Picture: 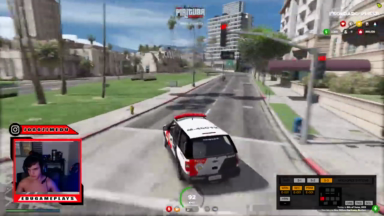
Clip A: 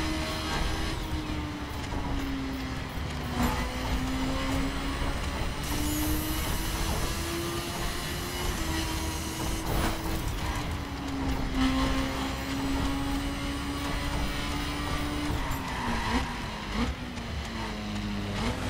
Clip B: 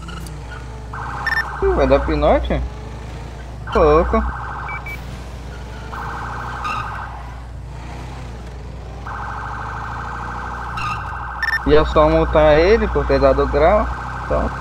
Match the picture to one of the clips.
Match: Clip B